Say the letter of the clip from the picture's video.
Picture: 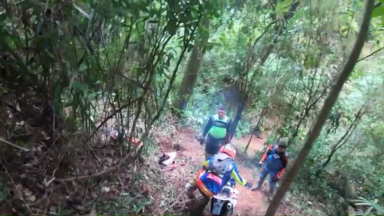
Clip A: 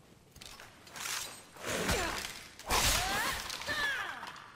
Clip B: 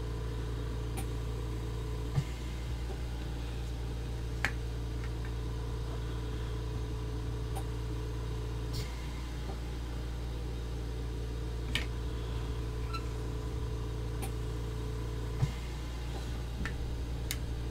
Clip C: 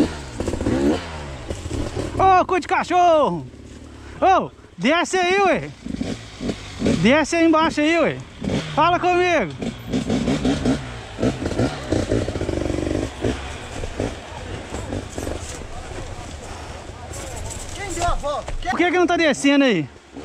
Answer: C